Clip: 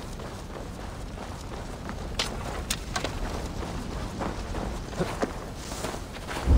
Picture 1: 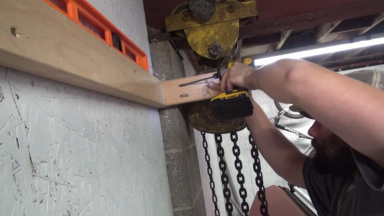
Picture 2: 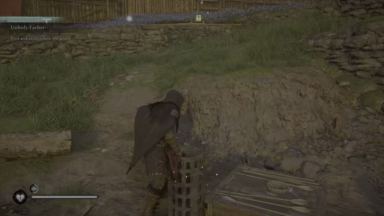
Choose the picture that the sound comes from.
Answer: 2